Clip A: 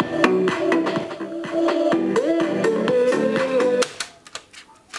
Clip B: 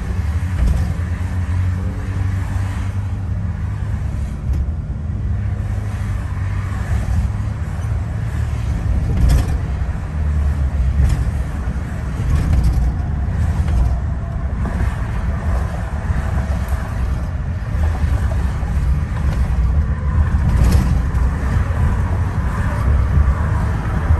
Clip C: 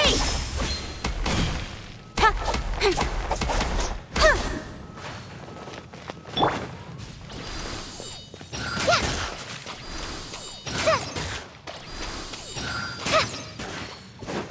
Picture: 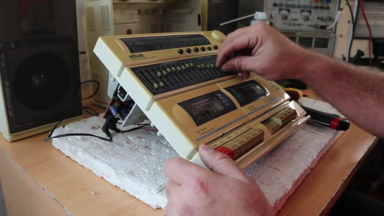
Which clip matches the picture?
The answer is A